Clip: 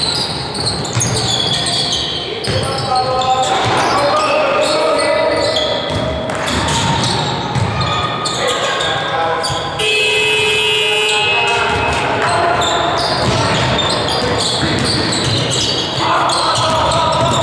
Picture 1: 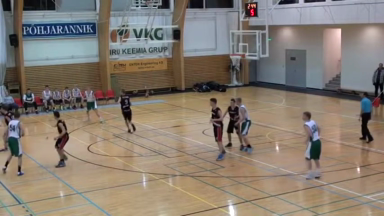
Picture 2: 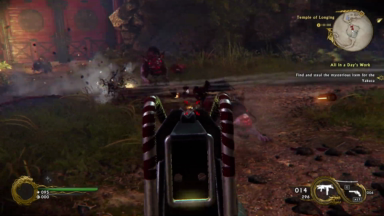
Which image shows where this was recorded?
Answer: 1